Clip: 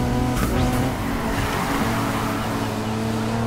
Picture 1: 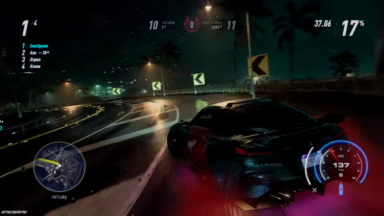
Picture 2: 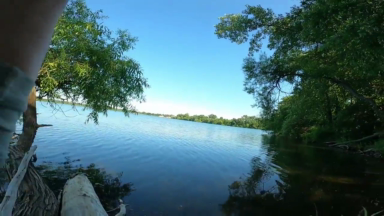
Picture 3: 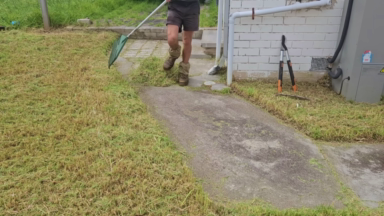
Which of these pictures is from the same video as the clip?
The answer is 1